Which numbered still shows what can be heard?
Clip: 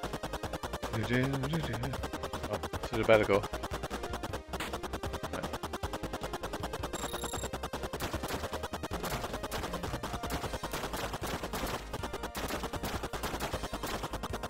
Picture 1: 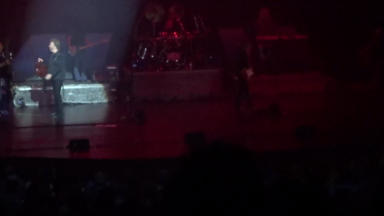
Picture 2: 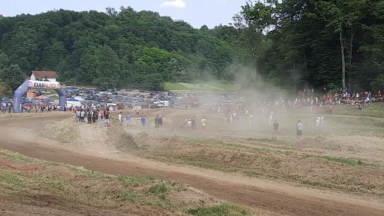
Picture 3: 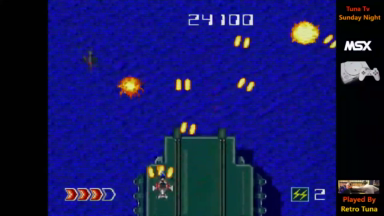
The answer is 3